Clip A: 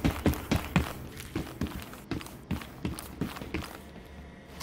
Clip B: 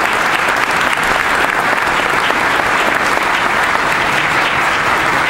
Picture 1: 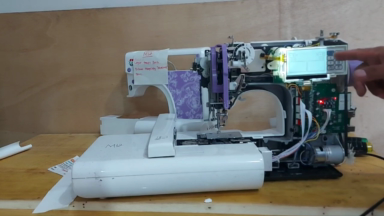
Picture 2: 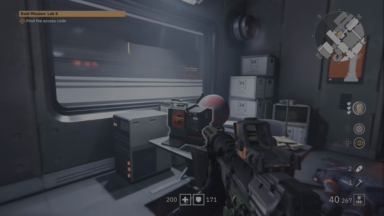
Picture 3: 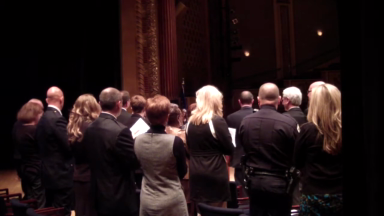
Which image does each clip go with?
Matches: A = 2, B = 3